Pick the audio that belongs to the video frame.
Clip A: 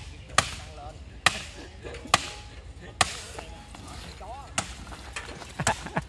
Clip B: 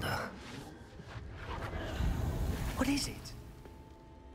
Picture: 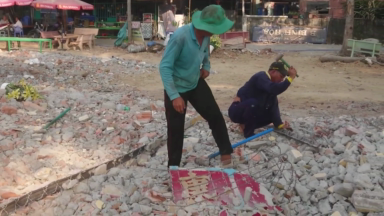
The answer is A